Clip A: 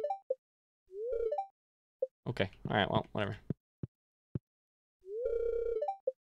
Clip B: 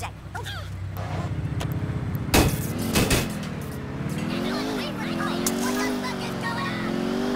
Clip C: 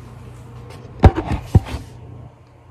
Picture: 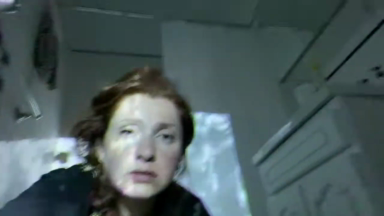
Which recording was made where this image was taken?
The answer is C